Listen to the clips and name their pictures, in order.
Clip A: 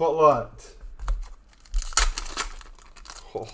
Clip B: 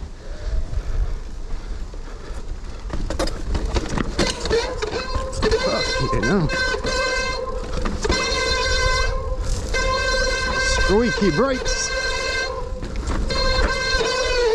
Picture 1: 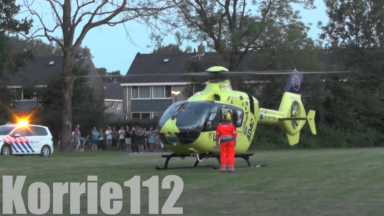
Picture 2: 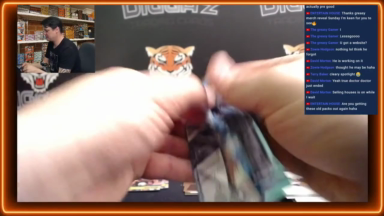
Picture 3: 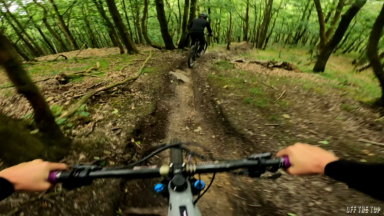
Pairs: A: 2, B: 3